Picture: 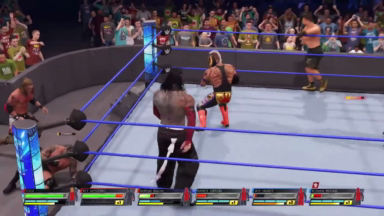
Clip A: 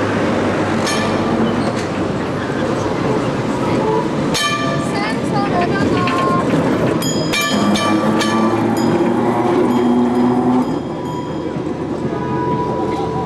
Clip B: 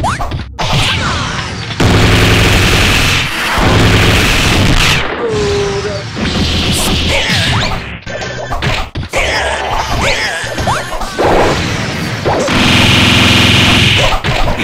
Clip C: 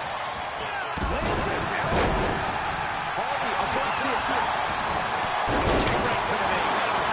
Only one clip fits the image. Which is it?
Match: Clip C